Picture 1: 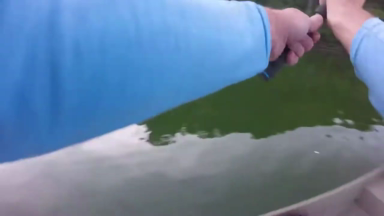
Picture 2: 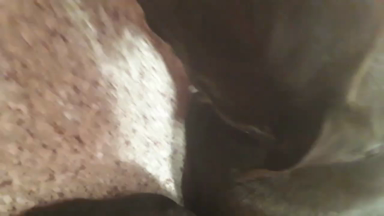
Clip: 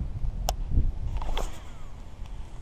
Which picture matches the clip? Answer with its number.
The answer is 1